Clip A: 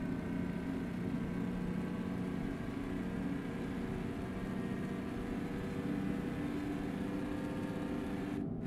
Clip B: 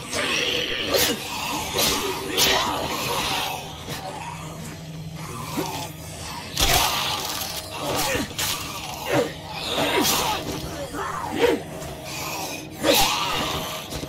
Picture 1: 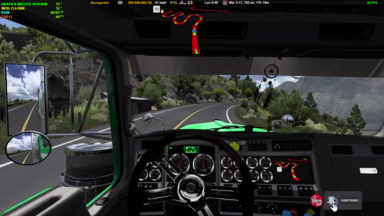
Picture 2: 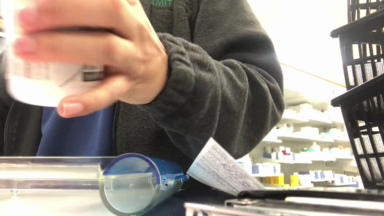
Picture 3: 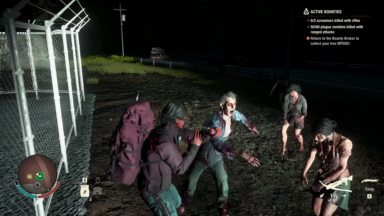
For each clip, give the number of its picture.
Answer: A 1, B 3